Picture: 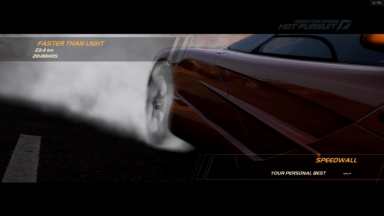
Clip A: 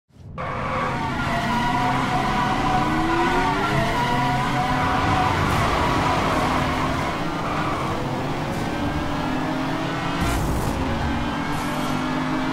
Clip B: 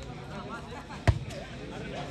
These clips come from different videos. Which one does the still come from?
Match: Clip A